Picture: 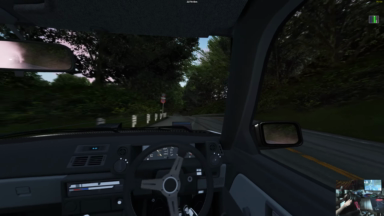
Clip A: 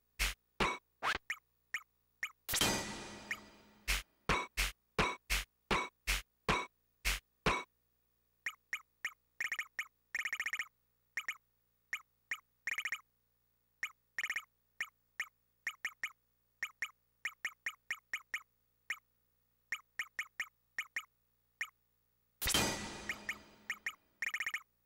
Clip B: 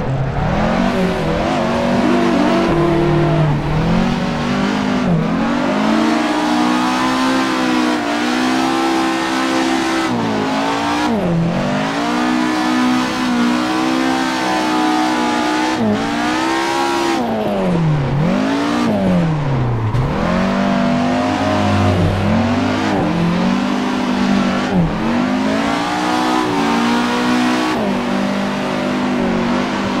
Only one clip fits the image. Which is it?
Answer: B